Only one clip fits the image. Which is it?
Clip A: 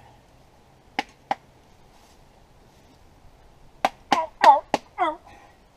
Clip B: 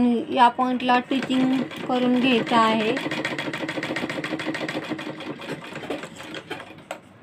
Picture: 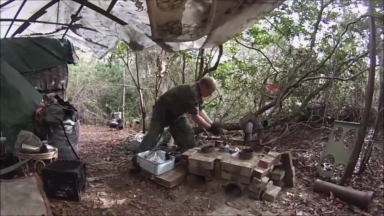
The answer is A